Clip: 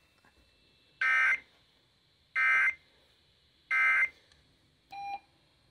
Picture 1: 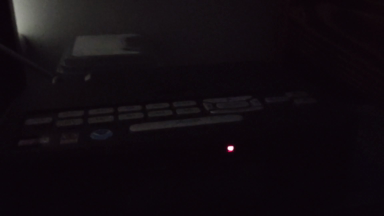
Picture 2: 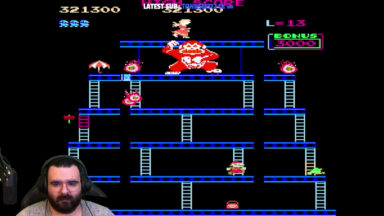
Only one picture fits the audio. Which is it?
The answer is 1